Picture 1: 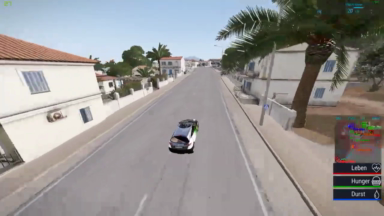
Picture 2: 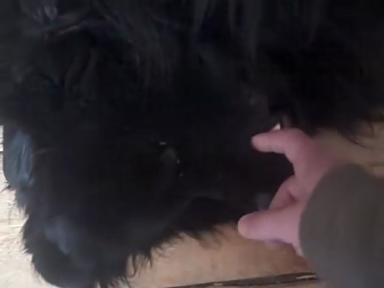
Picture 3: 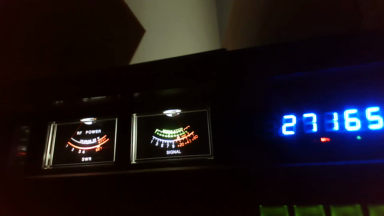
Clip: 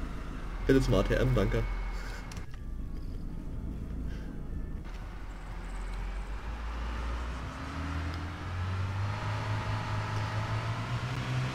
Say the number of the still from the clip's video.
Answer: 1